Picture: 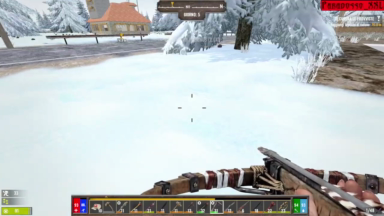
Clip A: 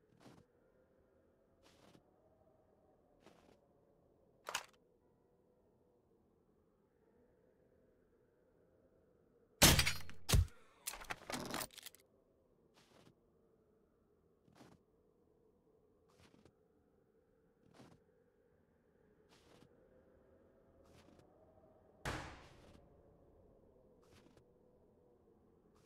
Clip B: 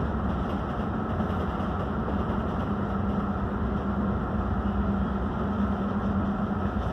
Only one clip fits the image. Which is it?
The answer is A